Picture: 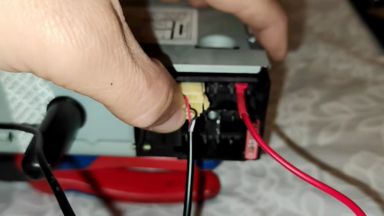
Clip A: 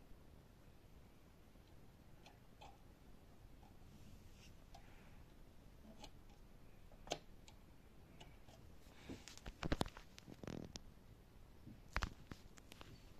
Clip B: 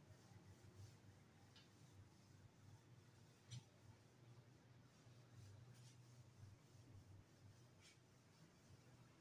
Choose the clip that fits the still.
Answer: A